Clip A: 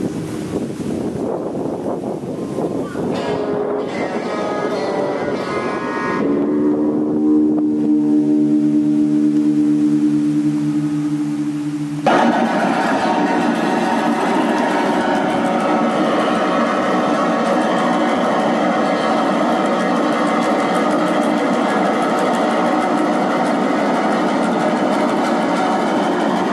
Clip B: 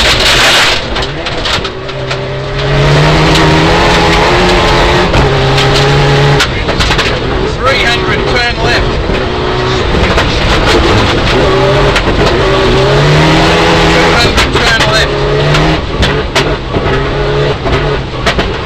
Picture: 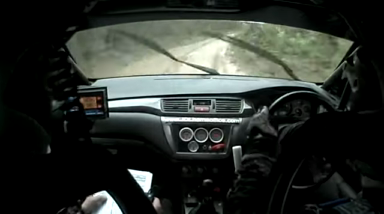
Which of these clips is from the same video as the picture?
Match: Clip B